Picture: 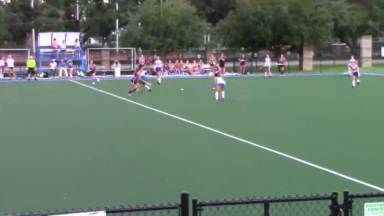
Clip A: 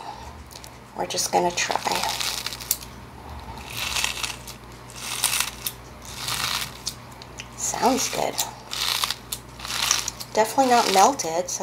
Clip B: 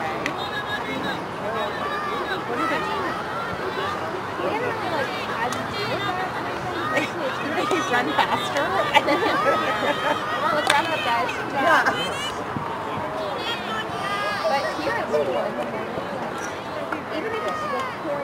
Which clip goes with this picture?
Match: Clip B